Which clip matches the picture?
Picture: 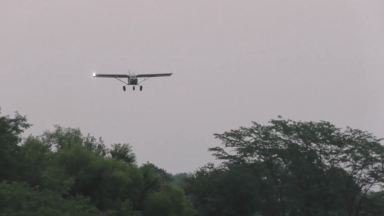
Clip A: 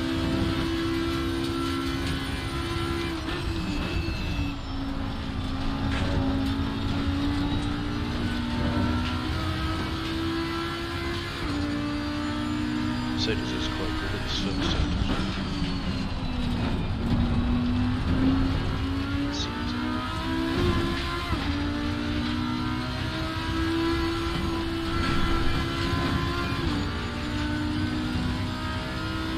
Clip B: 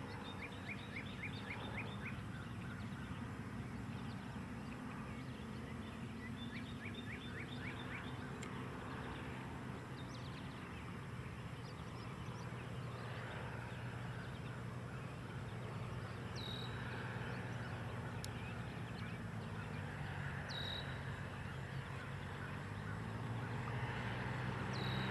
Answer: B